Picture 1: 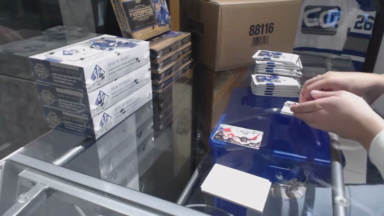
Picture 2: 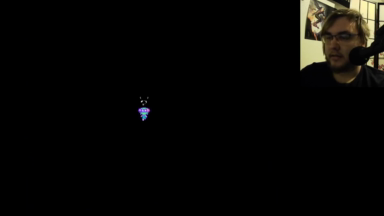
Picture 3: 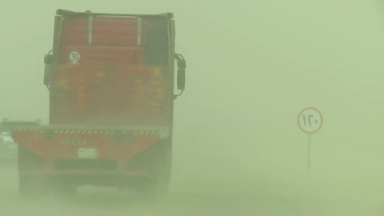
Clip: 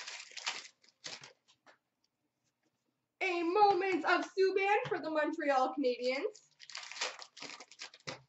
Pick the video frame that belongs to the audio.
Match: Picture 1